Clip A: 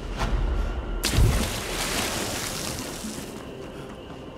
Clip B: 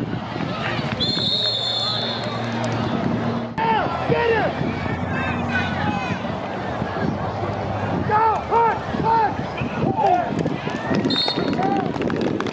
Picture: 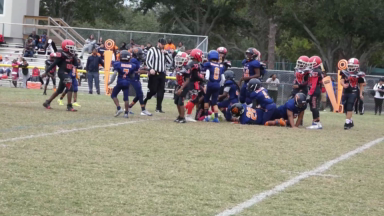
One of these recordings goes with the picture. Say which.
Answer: B